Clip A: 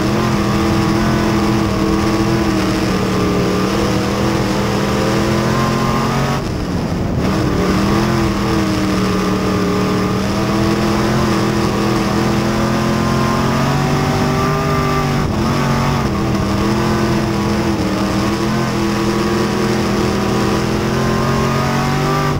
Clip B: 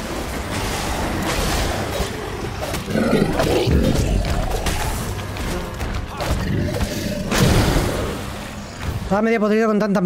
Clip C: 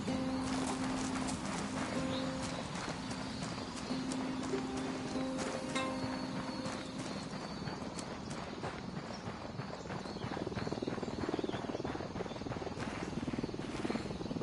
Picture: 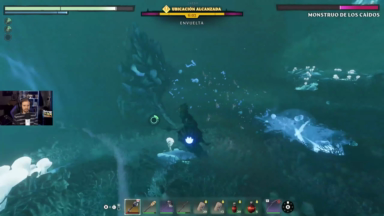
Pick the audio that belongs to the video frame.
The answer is B